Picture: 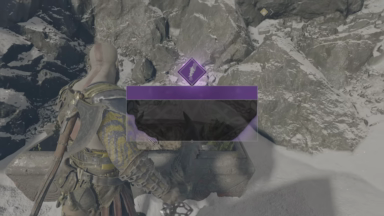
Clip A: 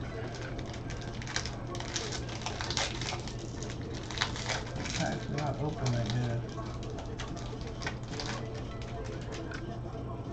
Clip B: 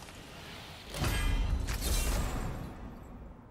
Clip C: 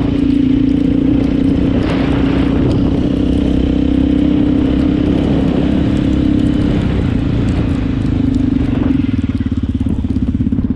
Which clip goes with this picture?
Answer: B